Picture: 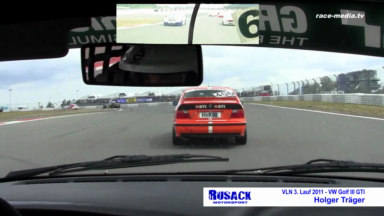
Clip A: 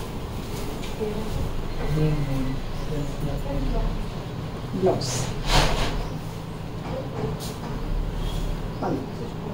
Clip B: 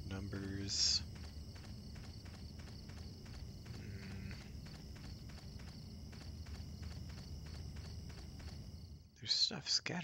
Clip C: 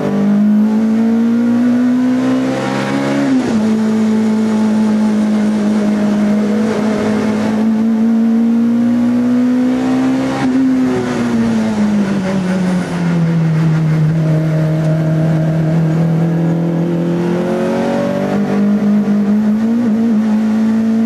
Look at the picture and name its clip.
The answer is C